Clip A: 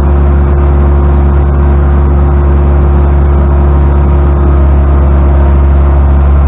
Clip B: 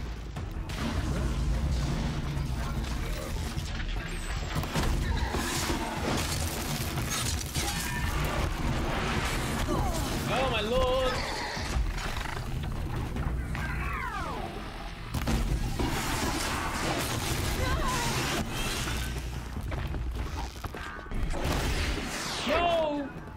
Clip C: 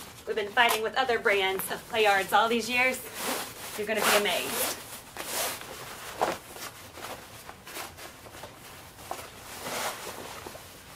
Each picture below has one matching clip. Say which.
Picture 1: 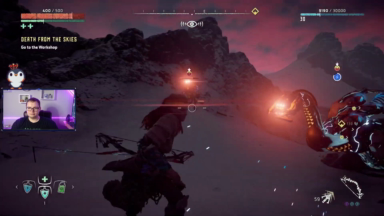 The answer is B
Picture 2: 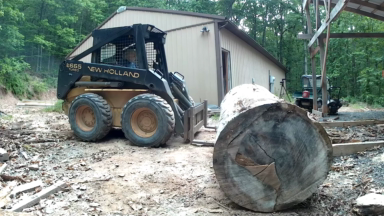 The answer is A